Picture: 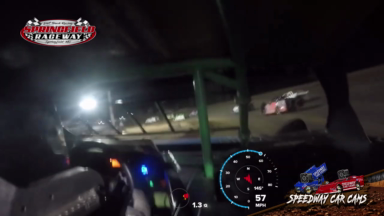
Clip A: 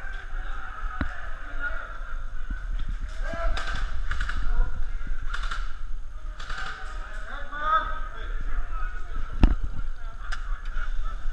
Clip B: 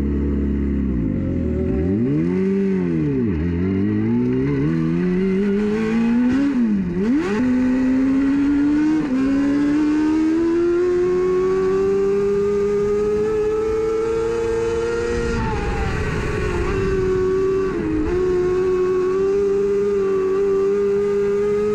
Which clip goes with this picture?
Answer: B